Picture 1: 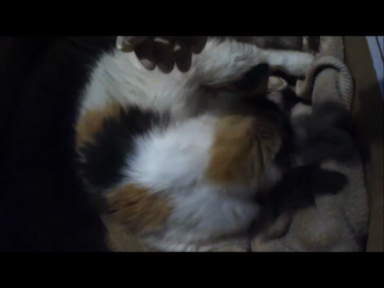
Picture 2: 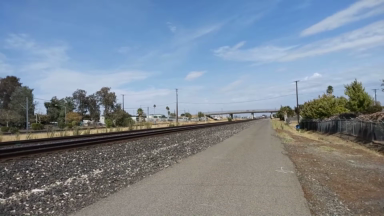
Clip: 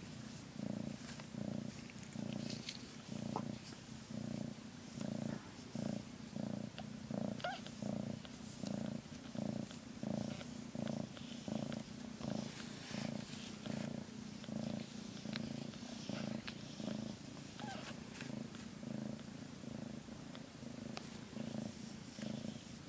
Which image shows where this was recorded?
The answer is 1